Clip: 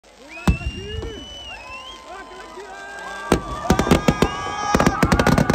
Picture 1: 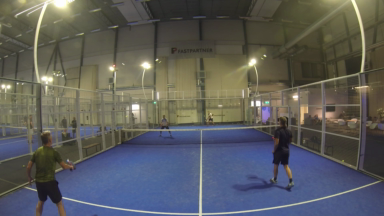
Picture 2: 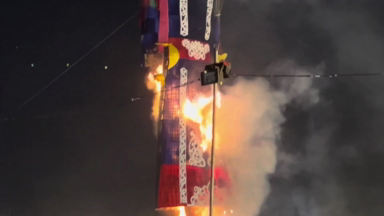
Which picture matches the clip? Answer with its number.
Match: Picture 2